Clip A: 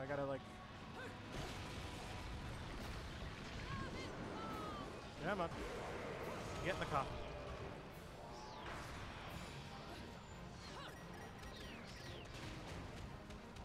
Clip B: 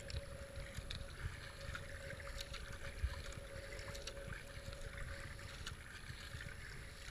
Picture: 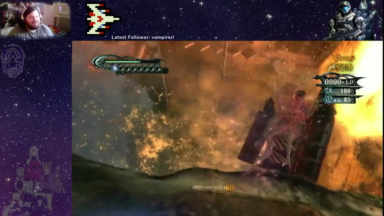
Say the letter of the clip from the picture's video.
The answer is A